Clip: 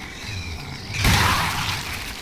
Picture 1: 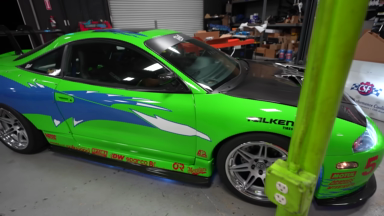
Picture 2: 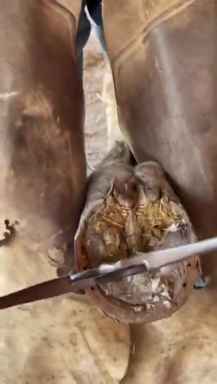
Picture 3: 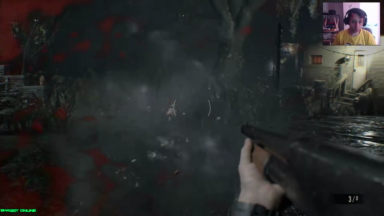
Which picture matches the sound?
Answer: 3